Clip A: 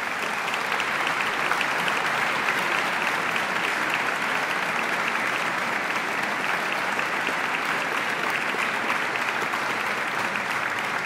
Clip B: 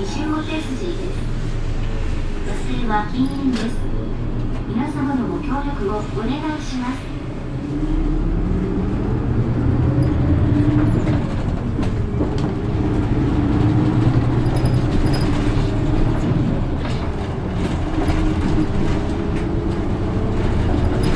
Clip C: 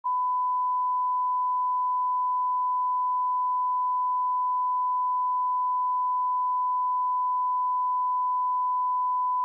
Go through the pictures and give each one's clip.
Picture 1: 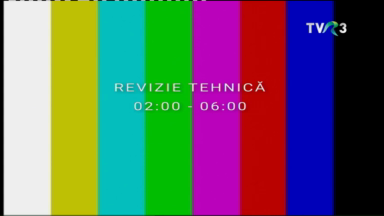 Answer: C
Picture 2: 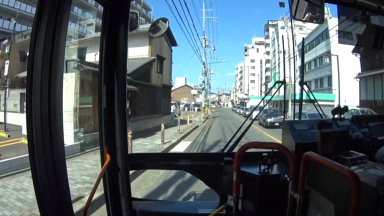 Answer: B